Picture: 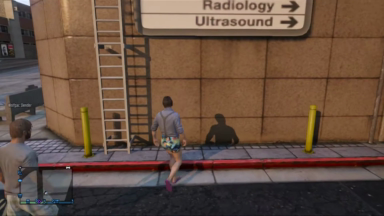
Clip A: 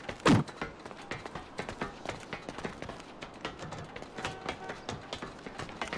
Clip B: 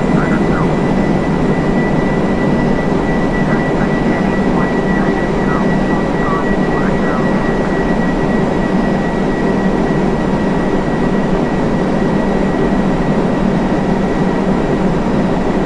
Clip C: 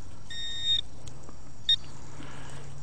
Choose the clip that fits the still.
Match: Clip A